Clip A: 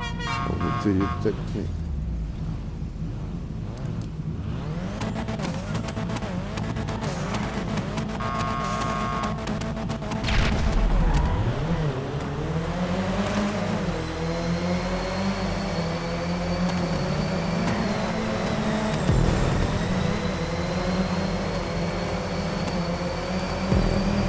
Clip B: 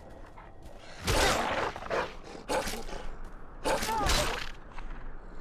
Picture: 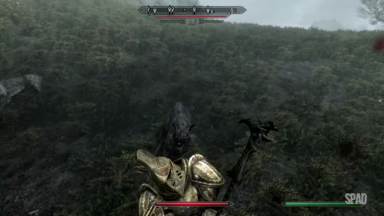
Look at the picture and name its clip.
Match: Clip B